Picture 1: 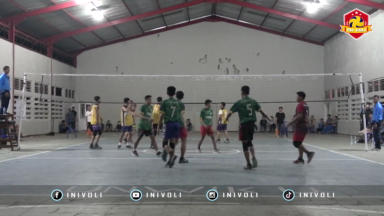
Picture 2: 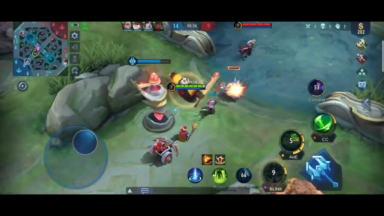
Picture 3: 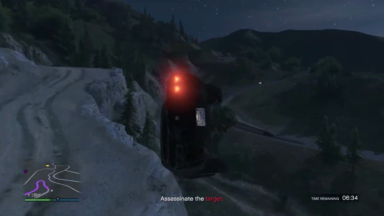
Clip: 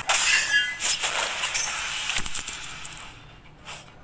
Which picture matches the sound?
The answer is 2